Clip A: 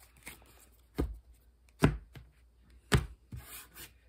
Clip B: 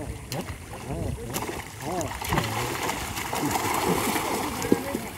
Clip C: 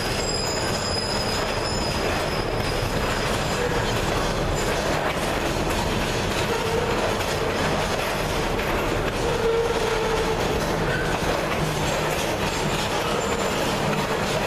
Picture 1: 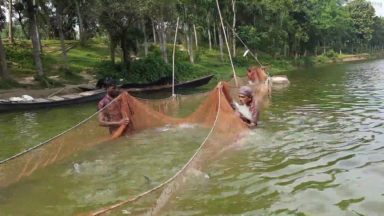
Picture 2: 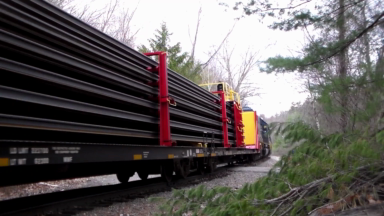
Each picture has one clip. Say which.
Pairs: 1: B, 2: C